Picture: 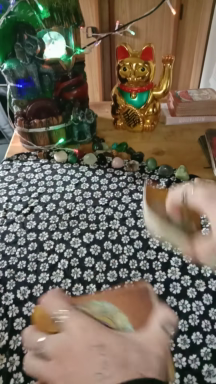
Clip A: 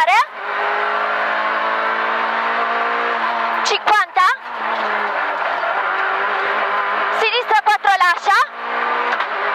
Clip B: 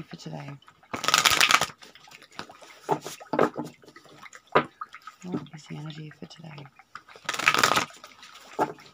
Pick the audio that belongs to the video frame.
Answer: B